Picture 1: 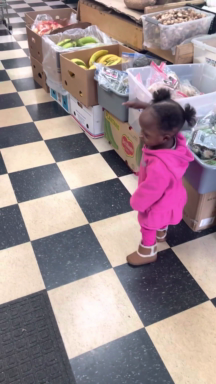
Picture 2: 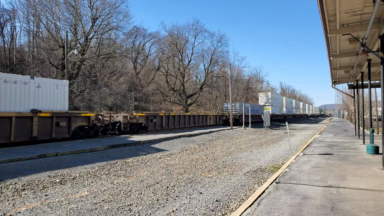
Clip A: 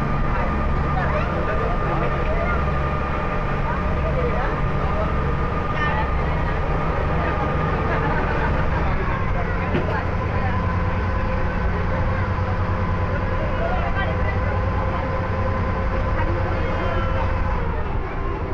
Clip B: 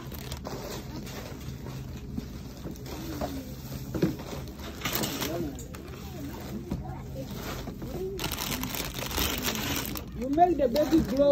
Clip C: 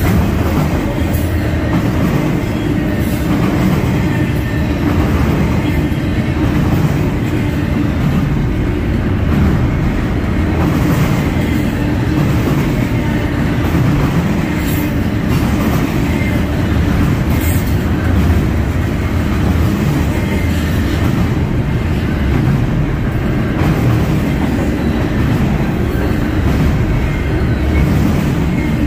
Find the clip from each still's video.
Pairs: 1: B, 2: C